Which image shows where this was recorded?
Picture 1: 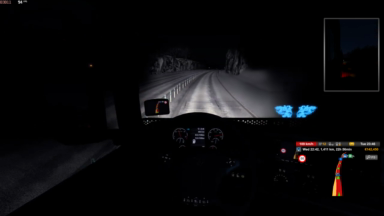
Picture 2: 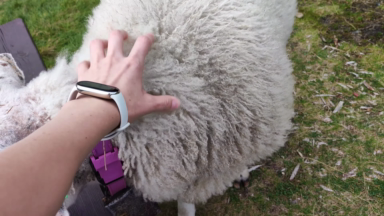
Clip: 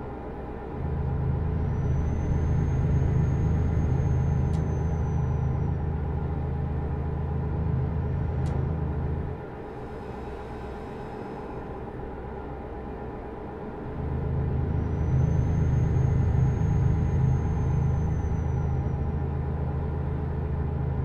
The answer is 1